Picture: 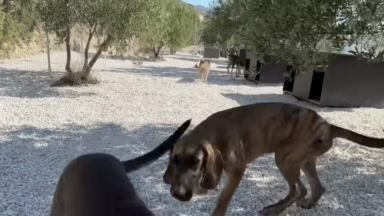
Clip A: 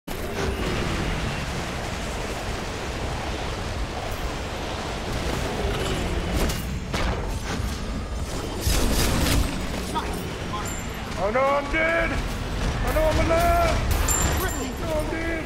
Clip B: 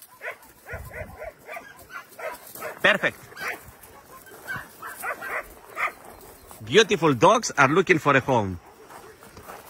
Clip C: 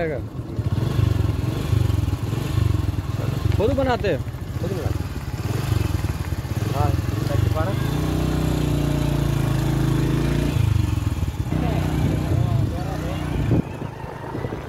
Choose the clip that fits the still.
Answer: B